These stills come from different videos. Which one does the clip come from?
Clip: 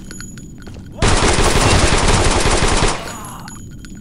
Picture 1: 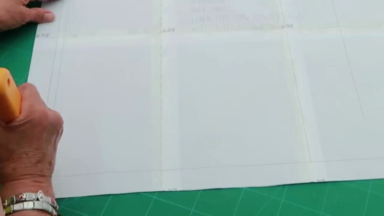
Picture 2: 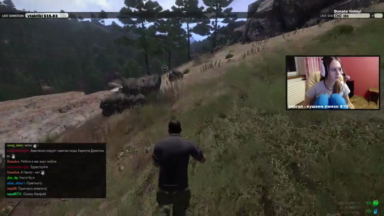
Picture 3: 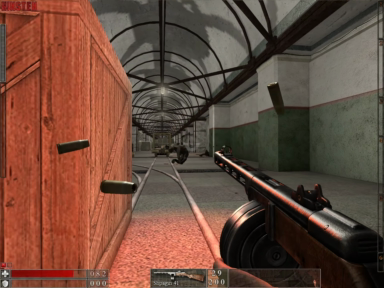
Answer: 3